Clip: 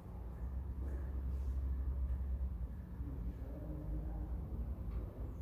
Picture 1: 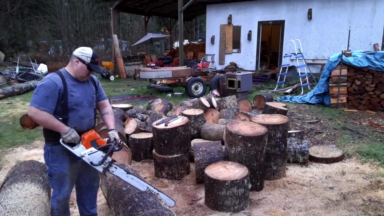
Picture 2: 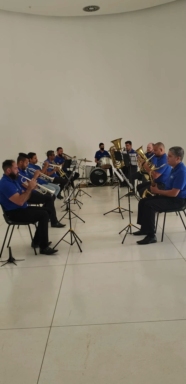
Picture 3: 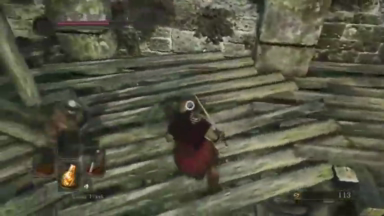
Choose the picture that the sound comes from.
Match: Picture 2